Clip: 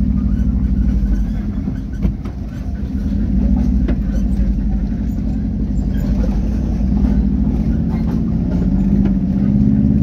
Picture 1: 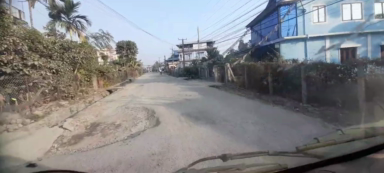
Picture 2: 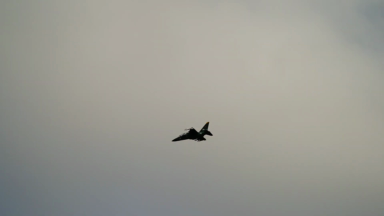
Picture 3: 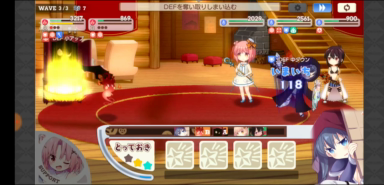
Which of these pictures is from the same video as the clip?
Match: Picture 1